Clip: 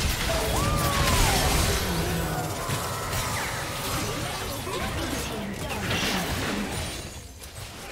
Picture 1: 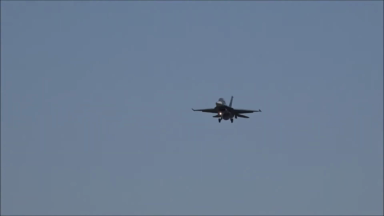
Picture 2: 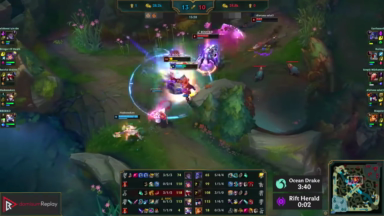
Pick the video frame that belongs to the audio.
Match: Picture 2